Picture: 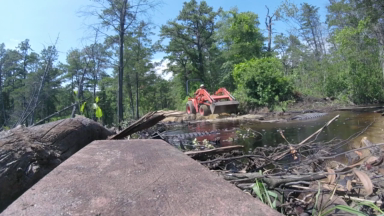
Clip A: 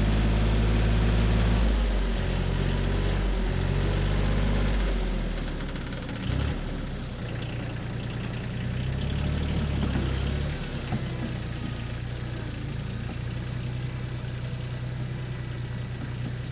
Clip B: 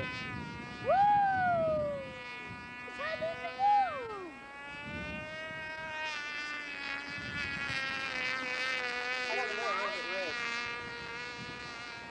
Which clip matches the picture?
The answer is A